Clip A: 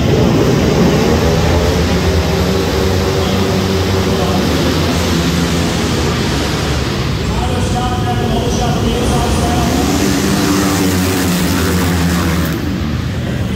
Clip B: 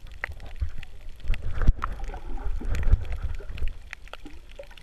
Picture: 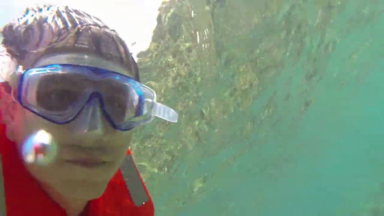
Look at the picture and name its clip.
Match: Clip B